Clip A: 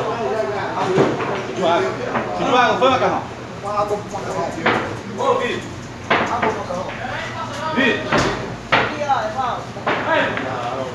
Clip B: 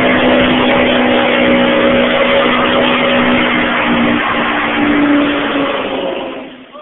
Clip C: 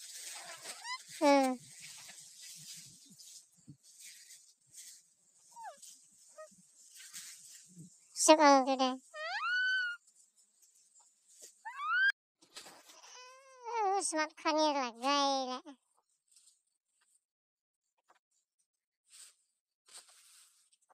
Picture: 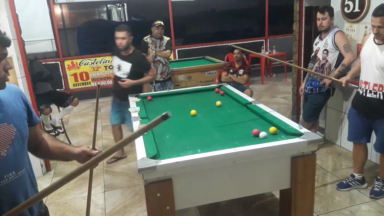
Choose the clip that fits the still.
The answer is A